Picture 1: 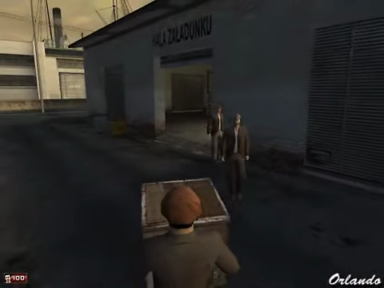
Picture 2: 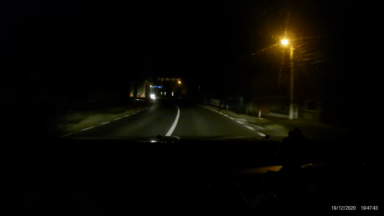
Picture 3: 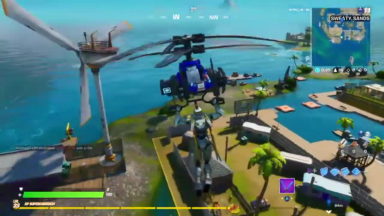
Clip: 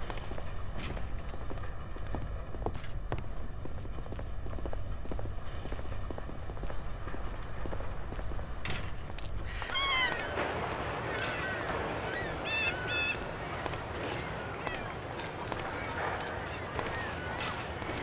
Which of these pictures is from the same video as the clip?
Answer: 1